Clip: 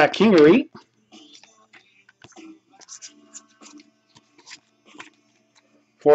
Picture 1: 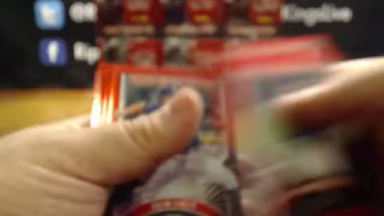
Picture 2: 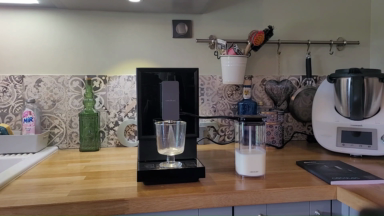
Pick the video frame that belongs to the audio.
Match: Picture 1